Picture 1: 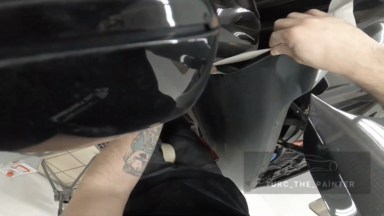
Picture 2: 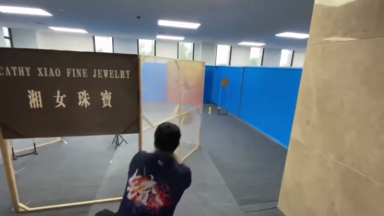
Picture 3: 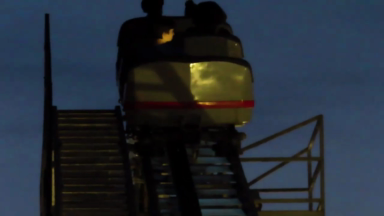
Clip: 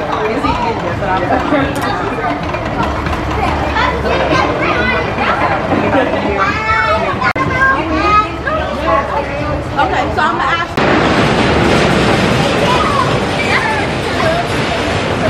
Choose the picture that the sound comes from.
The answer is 3